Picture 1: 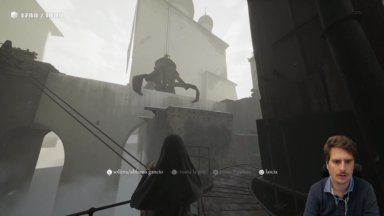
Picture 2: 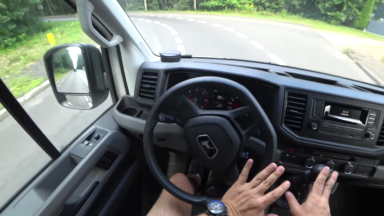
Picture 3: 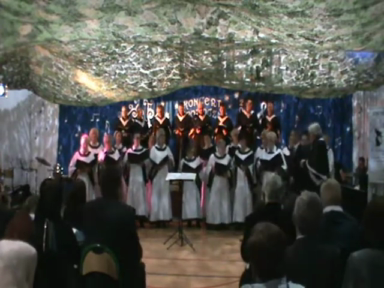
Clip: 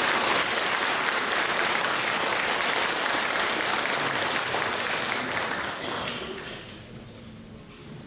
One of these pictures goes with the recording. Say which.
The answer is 3